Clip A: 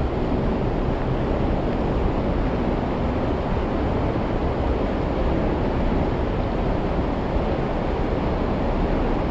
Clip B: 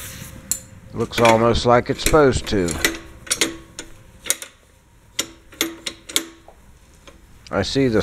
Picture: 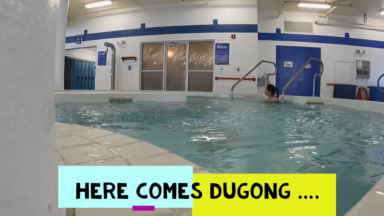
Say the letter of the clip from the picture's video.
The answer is A